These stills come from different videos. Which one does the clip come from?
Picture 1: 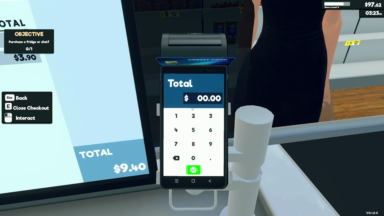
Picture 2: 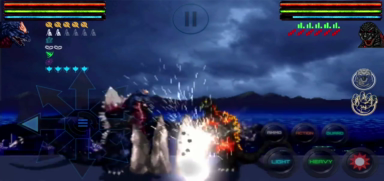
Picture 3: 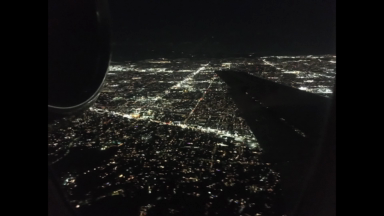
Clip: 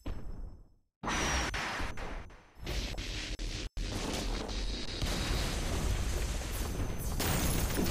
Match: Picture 2